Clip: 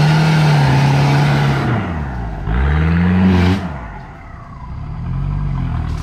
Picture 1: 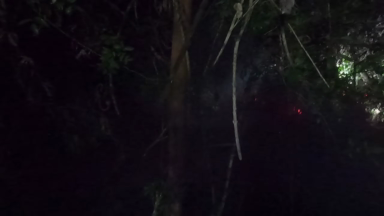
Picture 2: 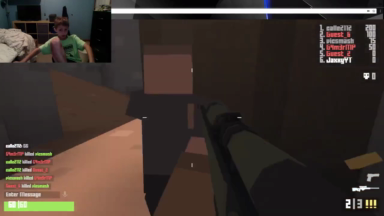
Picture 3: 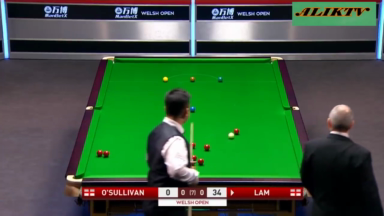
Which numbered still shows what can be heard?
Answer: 1